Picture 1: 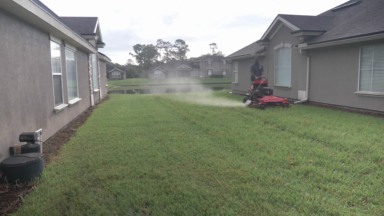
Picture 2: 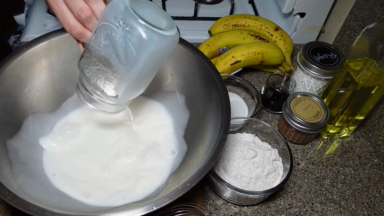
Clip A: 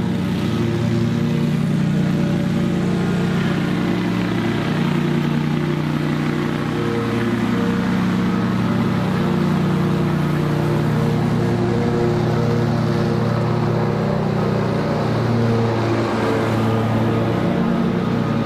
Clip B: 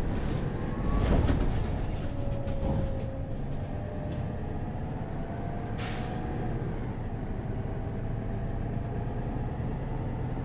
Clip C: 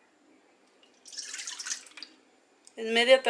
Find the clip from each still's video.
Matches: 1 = A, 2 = C